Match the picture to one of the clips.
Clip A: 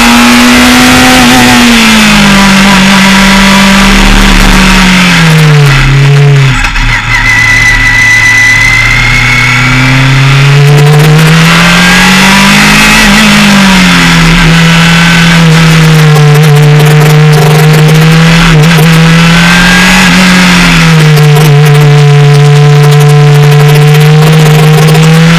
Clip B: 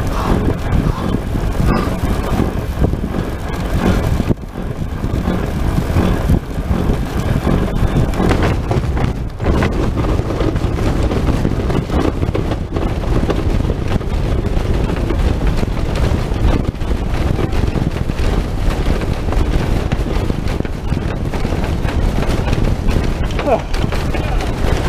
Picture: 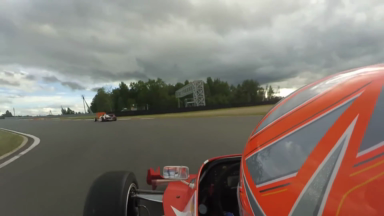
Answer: A